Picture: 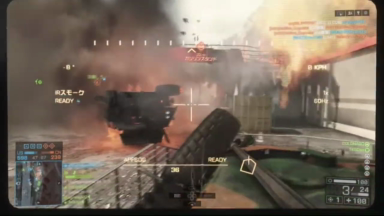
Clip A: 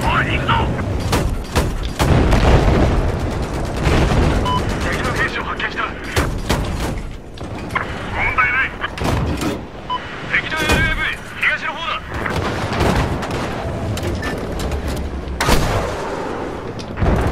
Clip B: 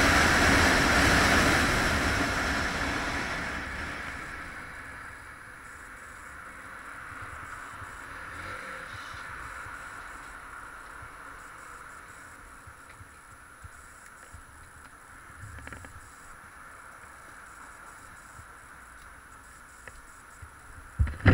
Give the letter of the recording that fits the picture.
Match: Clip A